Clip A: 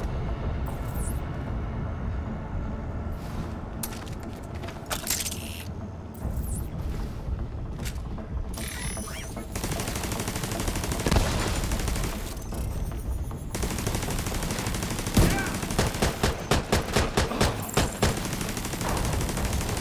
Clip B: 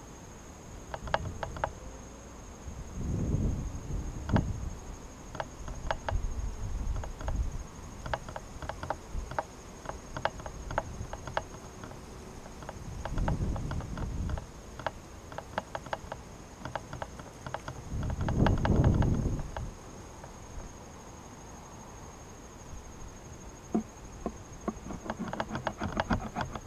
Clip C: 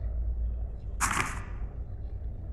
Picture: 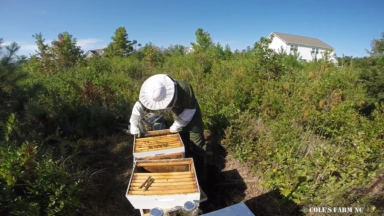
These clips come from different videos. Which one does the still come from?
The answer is B